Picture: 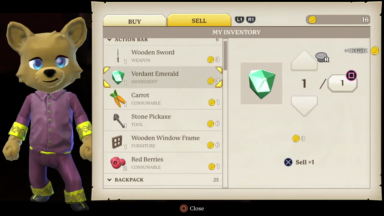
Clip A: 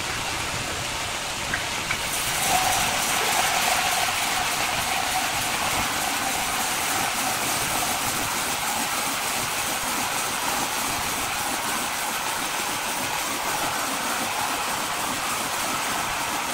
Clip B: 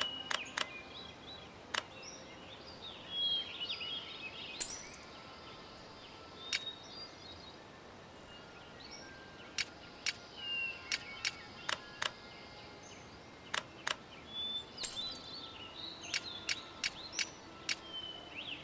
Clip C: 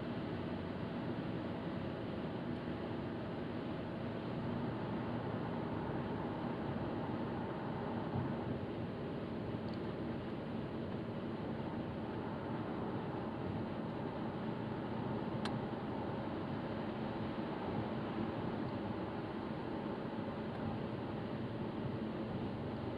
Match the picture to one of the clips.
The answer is B